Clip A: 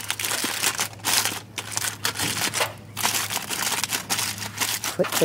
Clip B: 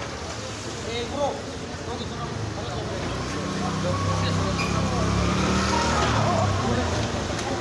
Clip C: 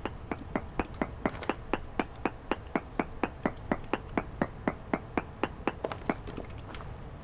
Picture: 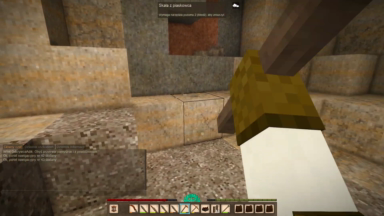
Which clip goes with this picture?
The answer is C